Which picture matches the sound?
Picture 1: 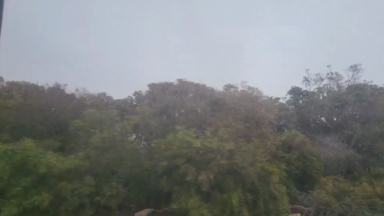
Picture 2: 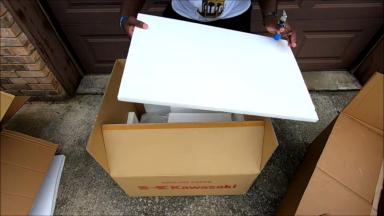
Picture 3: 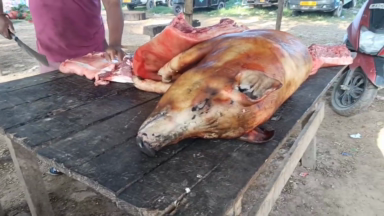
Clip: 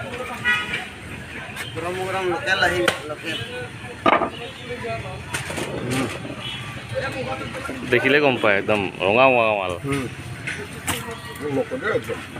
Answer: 3